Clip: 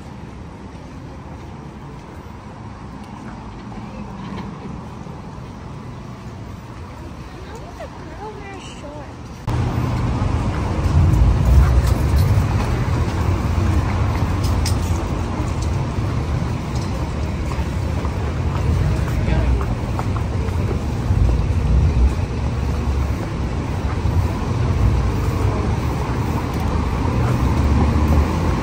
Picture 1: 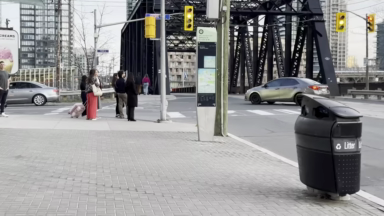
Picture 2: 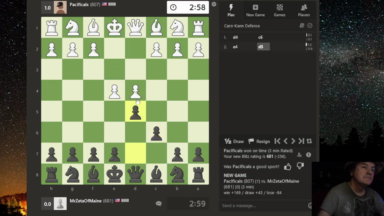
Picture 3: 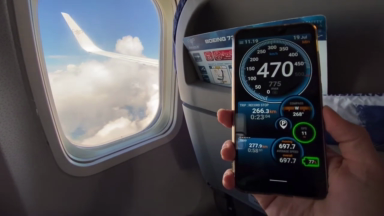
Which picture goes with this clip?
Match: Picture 1